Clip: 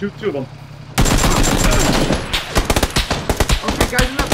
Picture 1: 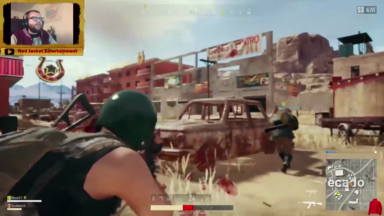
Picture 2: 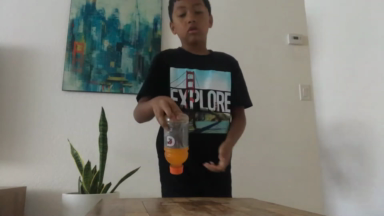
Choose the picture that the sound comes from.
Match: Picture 1